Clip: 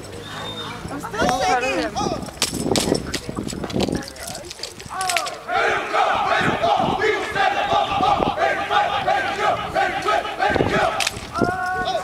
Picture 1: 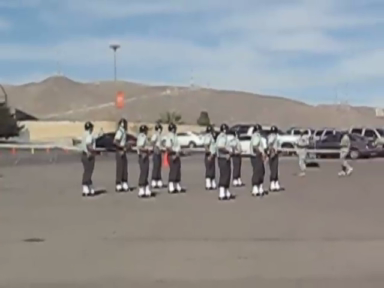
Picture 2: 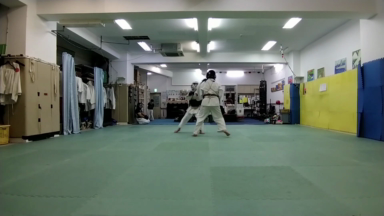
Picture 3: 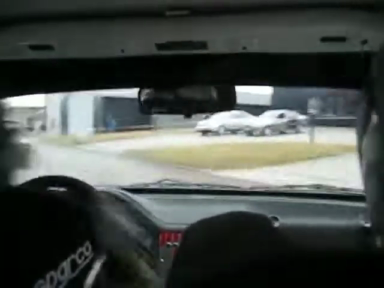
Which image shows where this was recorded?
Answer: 1